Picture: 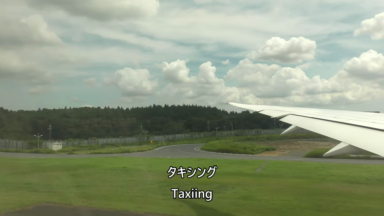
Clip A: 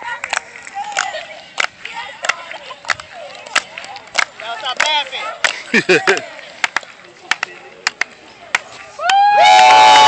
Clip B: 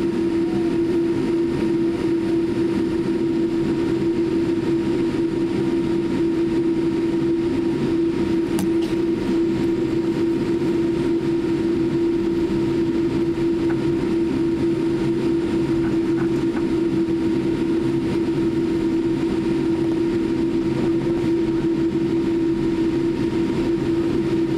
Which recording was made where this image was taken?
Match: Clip B